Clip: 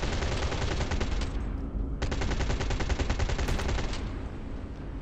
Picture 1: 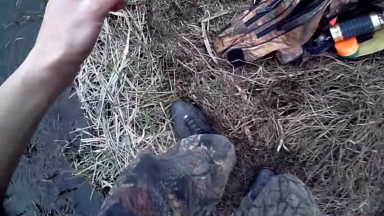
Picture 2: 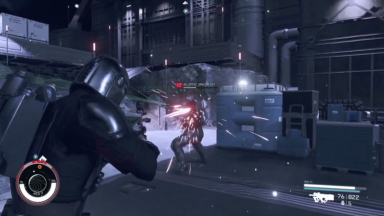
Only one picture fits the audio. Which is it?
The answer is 2